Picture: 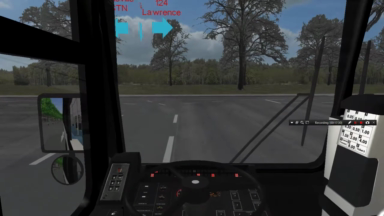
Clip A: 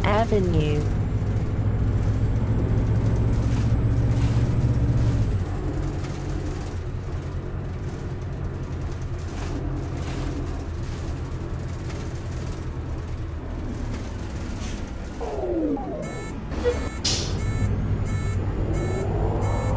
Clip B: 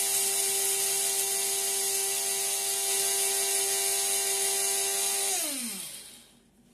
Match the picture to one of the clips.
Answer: A